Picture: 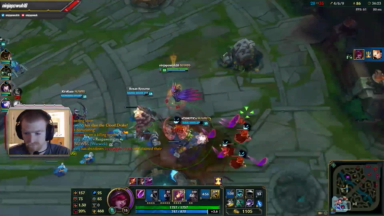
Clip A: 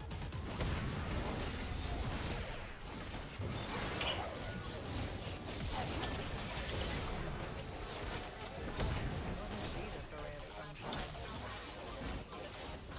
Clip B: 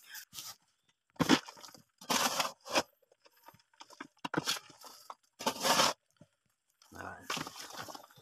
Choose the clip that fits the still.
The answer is A